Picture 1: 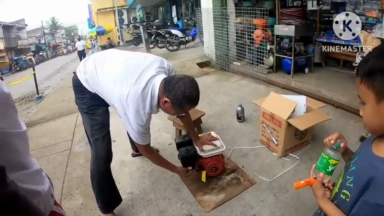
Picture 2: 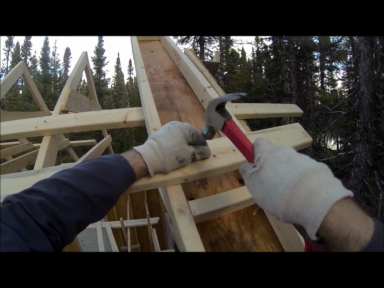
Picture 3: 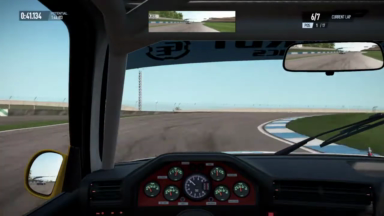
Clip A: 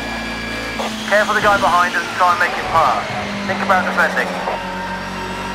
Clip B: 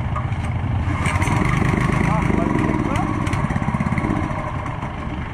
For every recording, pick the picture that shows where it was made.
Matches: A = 3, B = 1